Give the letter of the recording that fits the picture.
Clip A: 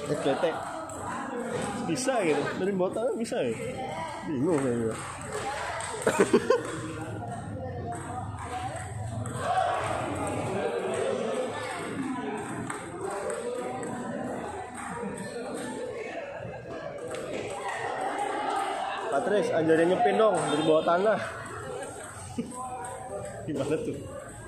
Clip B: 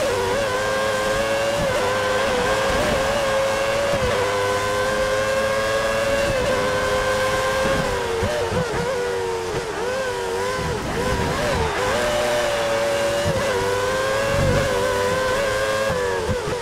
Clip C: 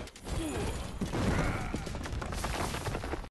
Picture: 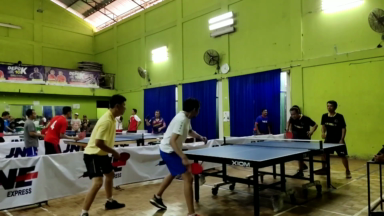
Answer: A